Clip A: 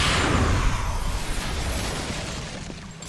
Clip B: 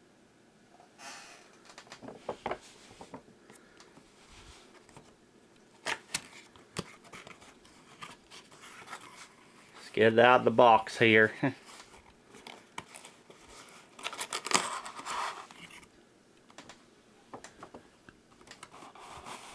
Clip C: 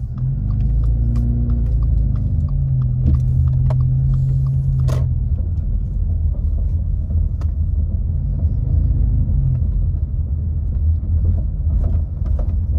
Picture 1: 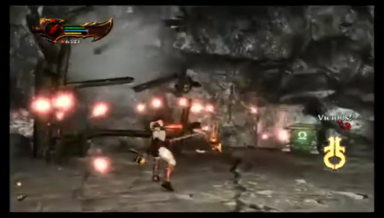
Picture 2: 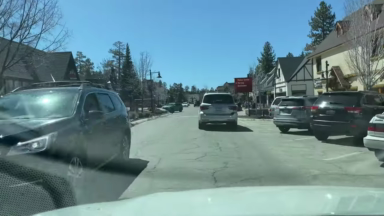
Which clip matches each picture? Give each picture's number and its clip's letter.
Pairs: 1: A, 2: C